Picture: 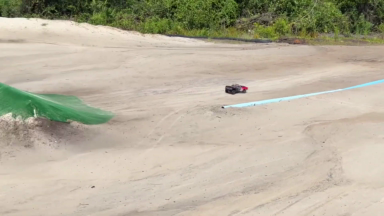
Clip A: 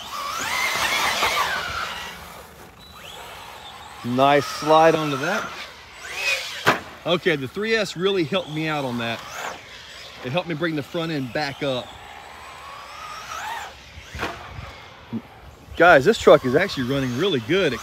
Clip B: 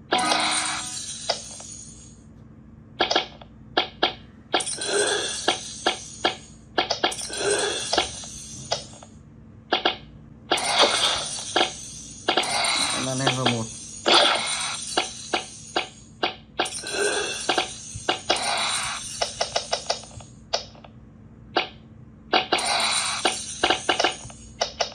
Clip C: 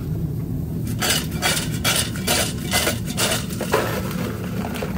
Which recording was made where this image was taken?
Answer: A